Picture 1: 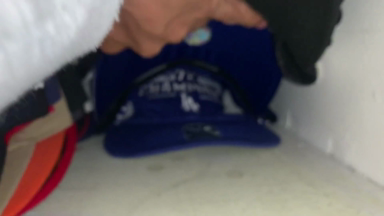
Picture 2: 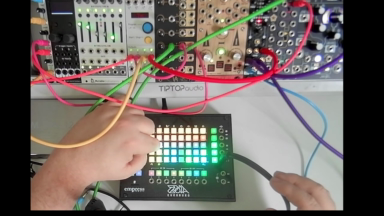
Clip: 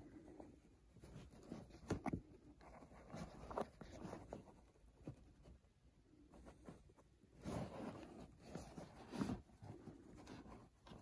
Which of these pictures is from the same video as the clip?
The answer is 1